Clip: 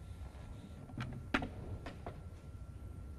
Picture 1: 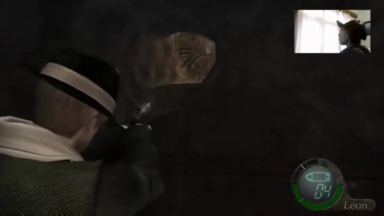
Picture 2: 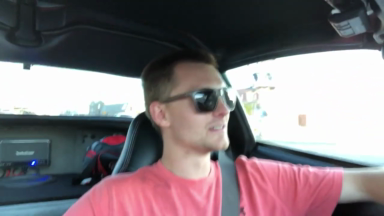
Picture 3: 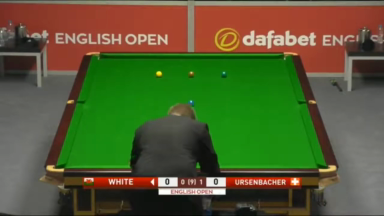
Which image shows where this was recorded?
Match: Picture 3